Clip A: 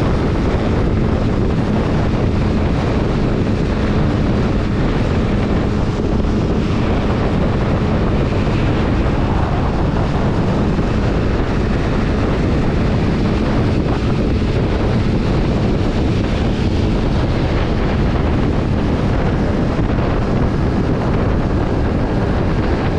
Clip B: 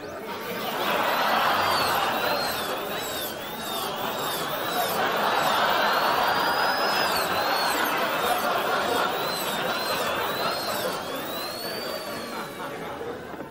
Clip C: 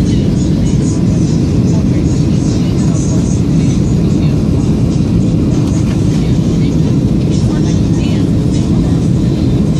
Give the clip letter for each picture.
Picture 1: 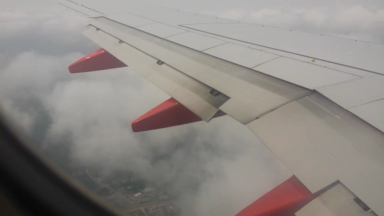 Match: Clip C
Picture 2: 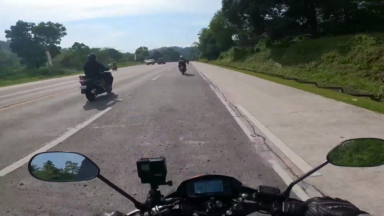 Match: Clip A